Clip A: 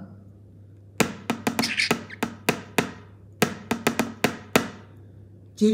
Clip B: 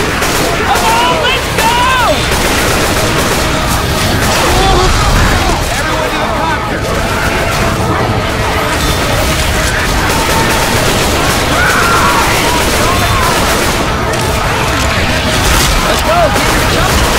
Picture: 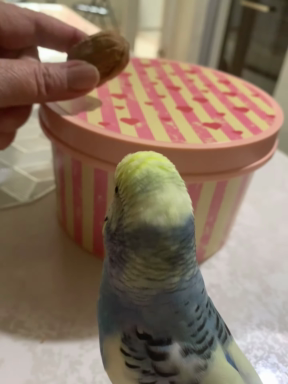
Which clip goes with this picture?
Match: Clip A